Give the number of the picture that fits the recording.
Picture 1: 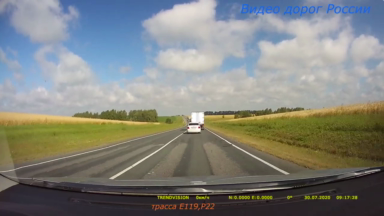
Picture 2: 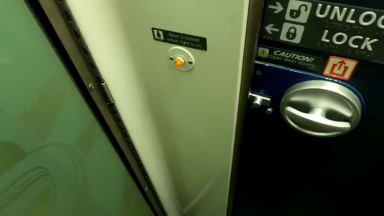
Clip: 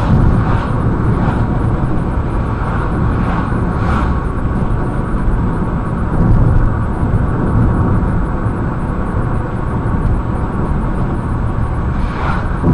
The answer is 1